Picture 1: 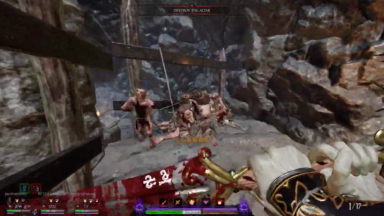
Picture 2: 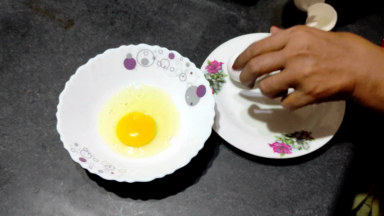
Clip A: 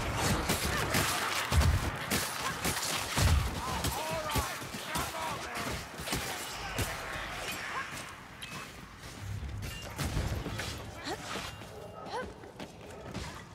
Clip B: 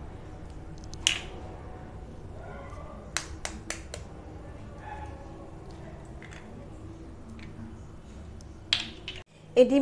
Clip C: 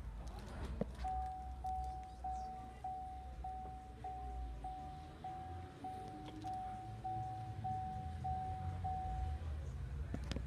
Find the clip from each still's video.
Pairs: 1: A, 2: B